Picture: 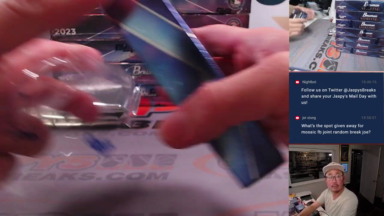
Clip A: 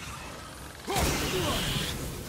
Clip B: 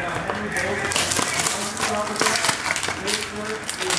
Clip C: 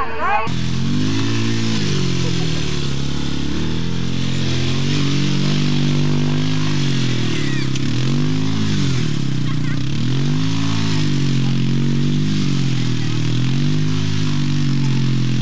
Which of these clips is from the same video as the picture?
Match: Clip B